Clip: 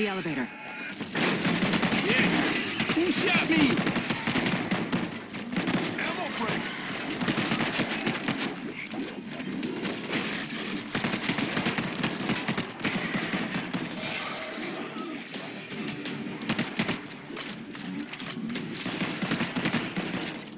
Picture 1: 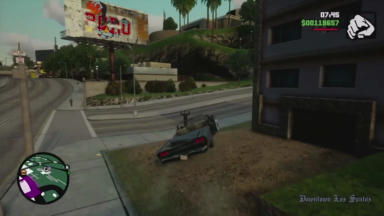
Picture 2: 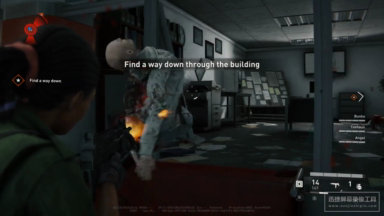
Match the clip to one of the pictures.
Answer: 2